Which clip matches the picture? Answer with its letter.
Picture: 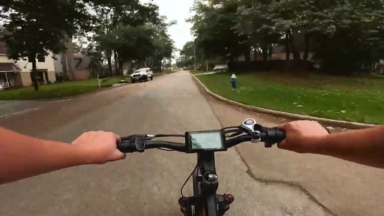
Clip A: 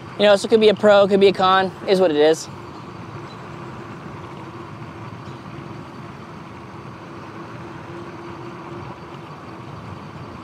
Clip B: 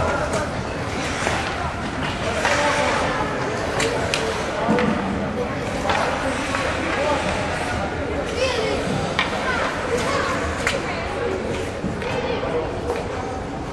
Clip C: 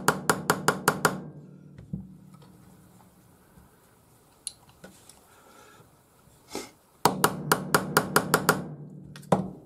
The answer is A